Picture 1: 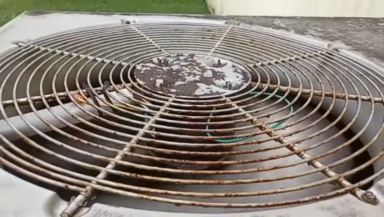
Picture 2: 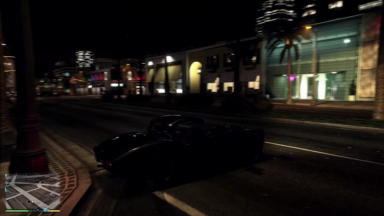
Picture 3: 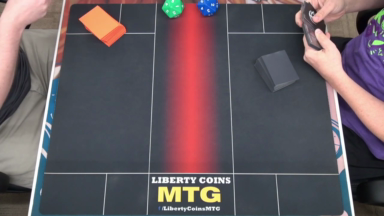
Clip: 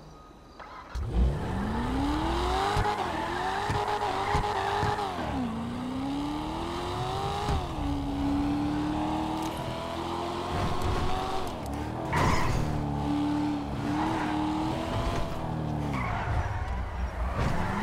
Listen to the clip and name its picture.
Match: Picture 2